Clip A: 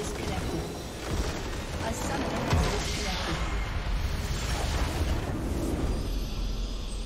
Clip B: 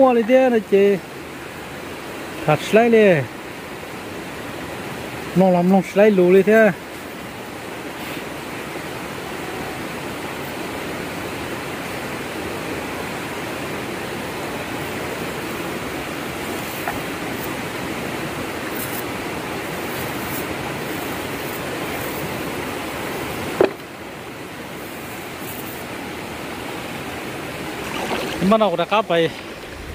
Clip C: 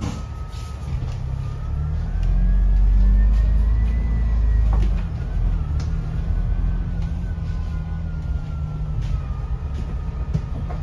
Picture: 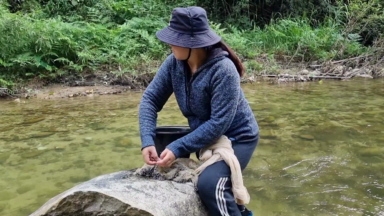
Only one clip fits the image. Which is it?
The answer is B